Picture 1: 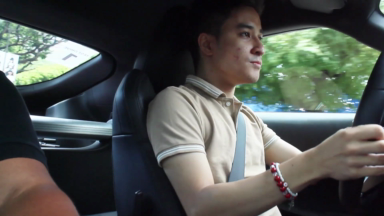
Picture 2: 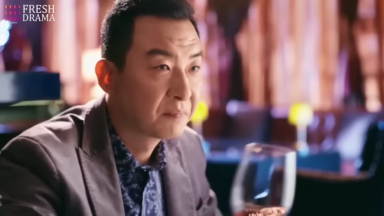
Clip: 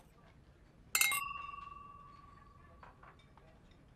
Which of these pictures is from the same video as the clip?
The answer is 2